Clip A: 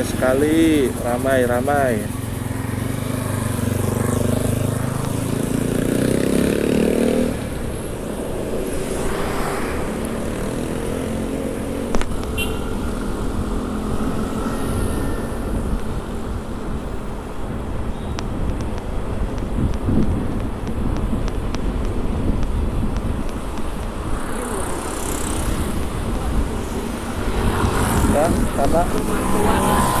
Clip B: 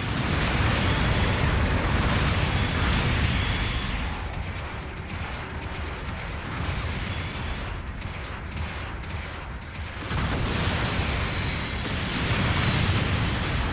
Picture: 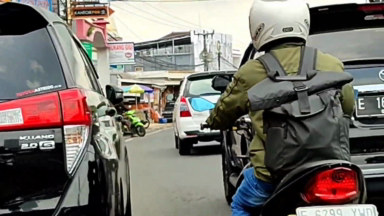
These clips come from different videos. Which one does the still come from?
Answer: A